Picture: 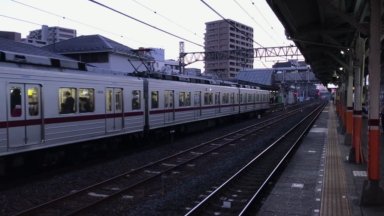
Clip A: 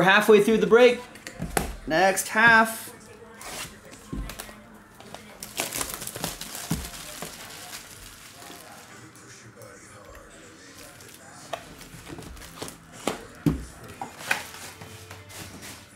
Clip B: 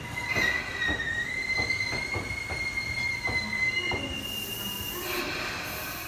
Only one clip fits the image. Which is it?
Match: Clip B